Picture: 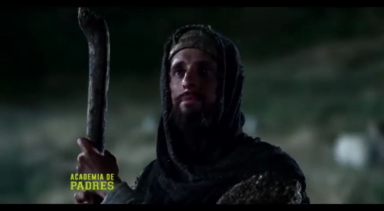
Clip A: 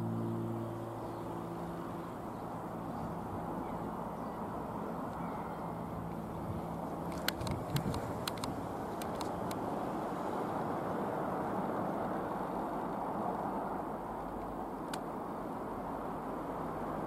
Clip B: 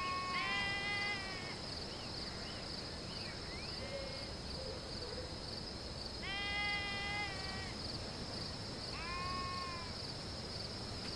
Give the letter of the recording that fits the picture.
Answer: B